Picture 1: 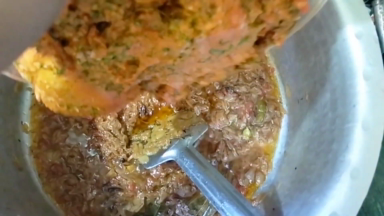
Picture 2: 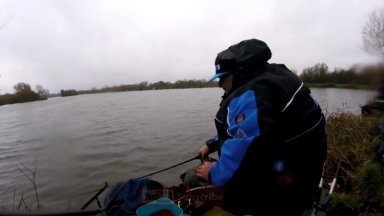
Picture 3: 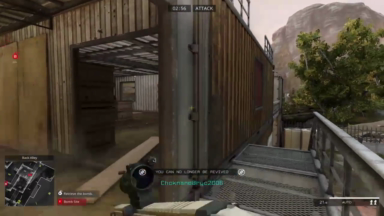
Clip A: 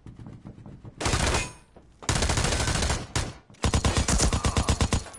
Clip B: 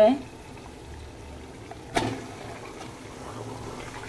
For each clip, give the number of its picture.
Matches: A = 3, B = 1